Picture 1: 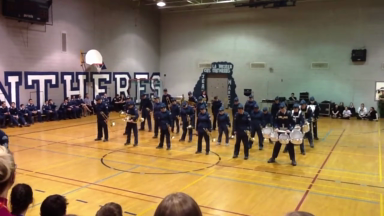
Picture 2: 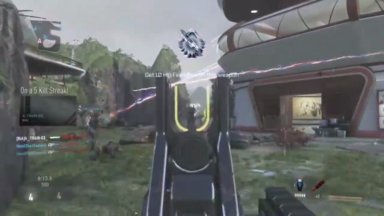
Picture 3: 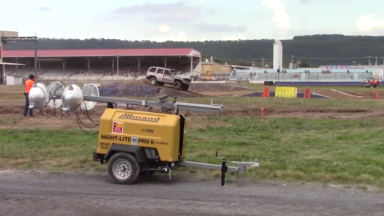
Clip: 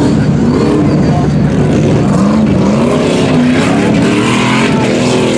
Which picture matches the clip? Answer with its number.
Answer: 3